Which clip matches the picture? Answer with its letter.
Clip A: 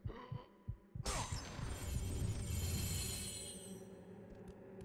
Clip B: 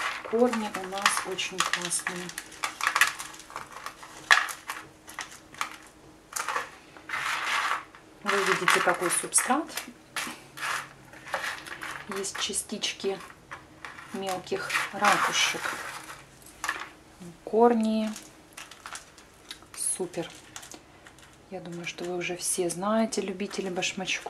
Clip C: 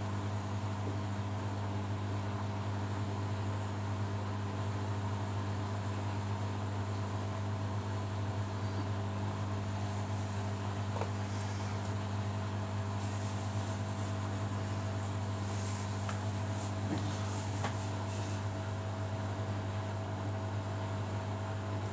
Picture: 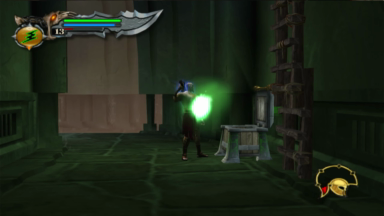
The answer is A